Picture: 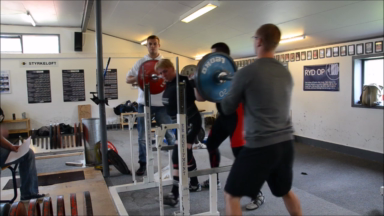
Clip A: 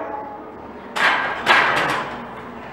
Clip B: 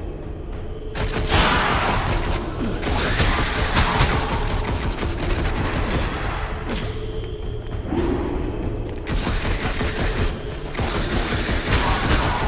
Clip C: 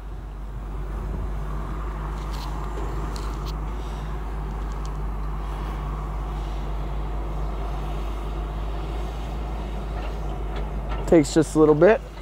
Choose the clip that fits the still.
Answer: A